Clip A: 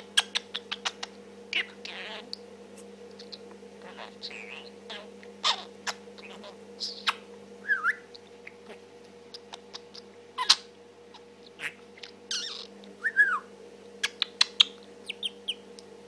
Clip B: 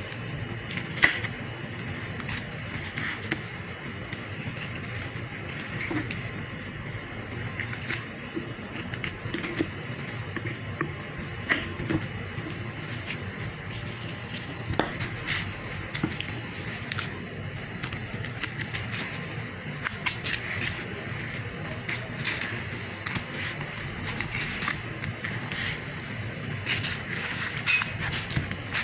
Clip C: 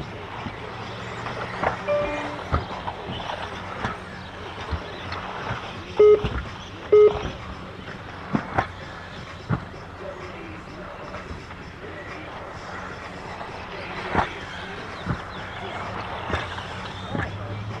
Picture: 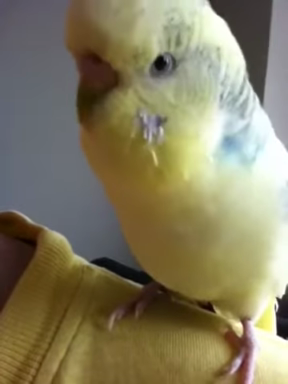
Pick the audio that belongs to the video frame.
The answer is A